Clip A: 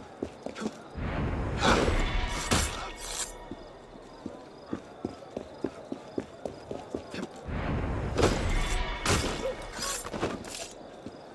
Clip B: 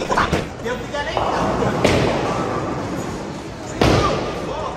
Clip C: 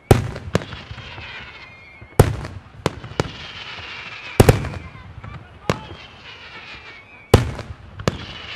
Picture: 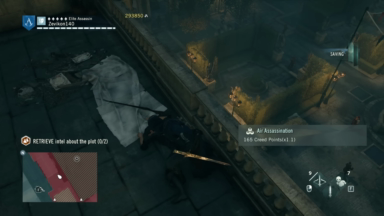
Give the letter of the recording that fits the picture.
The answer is A